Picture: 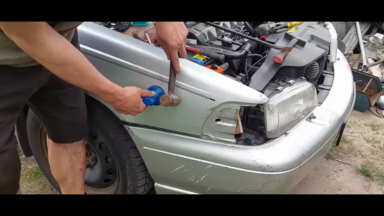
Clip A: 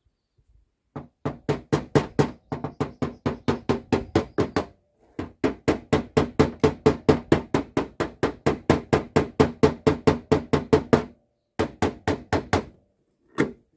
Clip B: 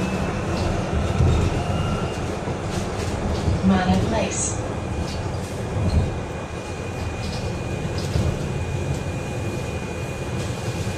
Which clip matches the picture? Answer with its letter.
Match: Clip A